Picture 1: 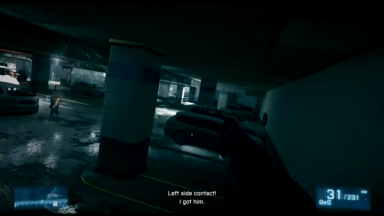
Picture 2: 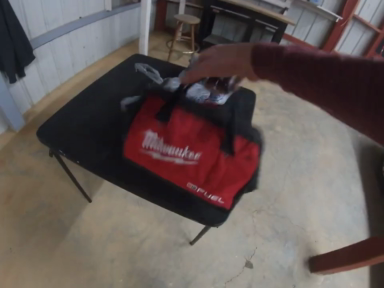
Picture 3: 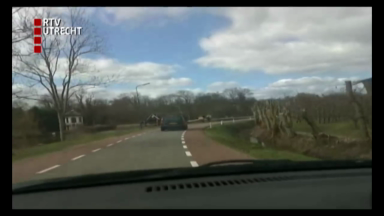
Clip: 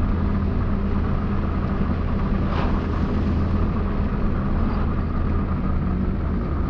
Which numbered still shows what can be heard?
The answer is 3